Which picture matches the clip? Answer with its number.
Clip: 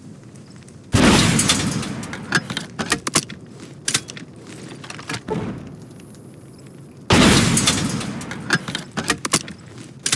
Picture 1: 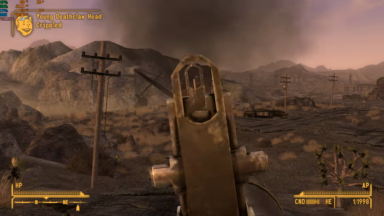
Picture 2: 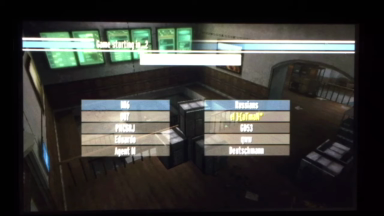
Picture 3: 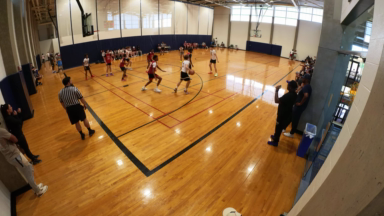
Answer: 1